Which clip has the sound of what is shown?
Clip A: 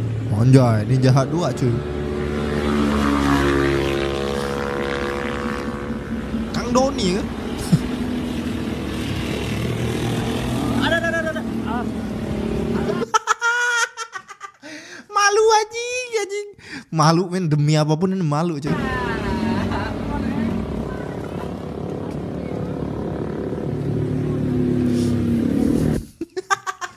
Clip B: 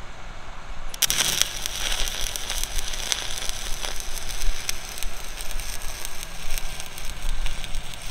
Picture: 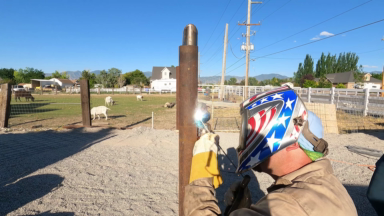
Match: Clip B